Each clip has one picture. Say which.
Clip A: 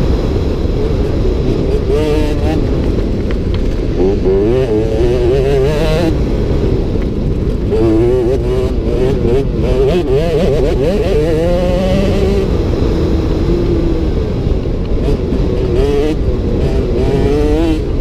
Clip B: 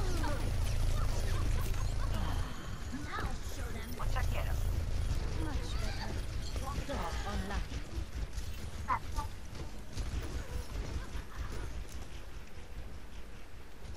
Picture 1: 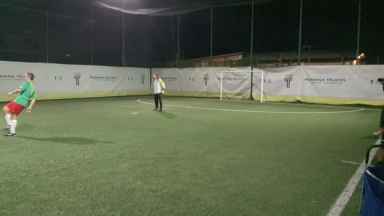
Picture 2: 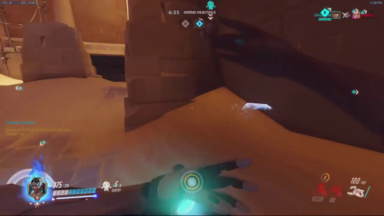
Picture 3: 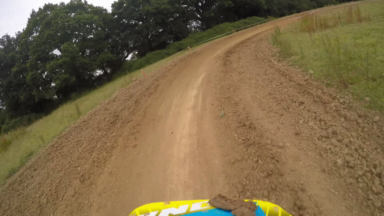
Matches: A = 3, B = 2